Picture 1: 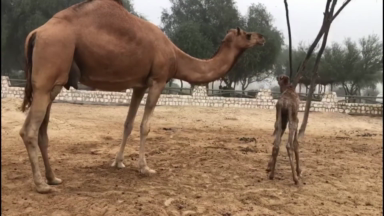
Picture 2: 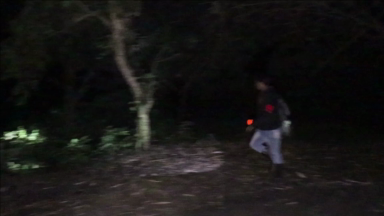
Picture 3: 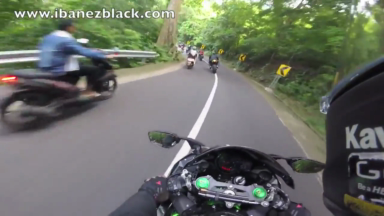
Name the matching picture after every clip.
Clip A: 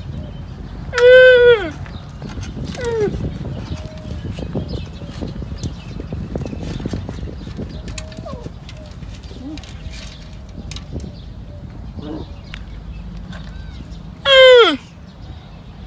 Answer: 1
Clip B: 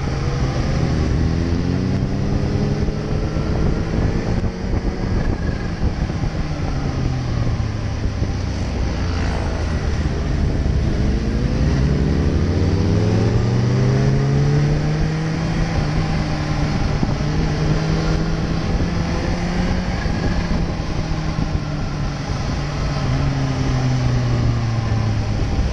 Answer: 3